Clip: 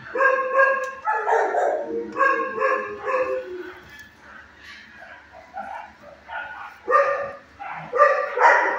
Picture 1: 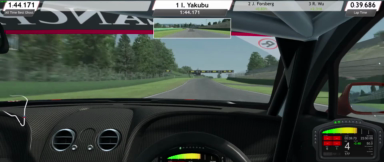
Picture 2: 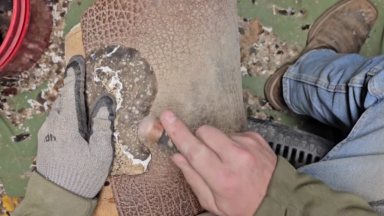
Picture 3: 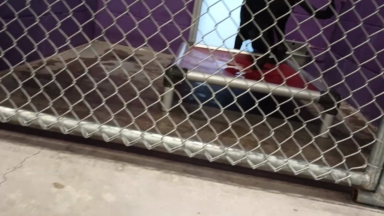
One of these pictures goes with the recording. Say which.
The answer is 3